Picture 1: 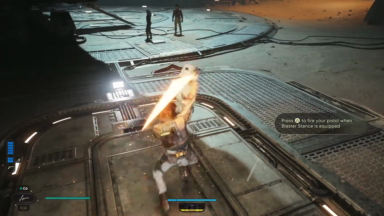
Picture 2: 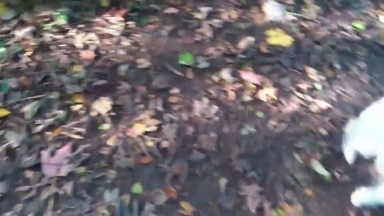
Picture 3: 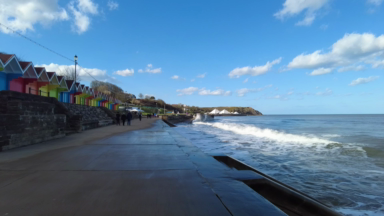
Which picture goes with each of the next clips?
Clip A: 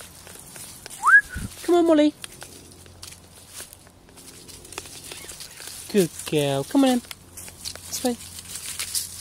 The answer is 2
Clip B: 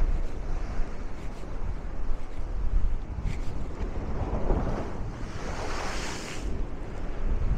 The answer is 3